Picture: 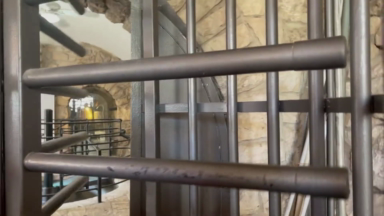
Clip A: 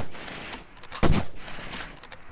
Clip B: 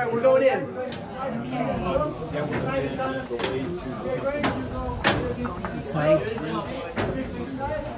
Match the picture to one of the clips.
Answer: B